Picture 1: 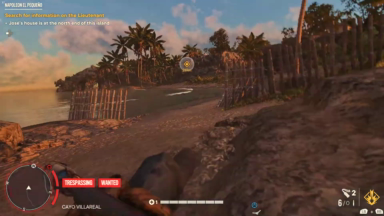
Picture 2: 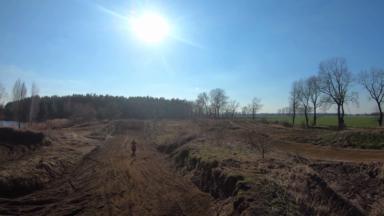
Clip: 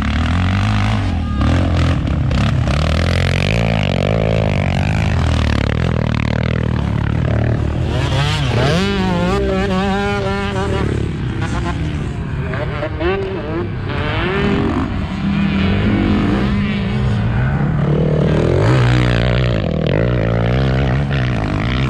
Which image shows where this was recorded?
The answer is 2